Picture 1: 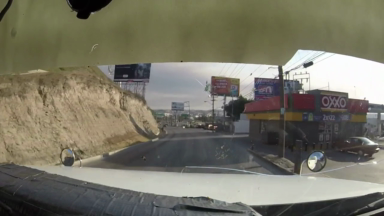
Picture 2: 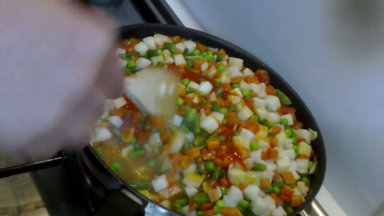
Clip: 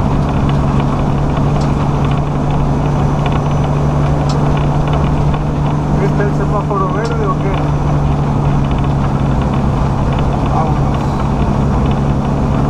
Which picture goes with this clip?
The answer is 1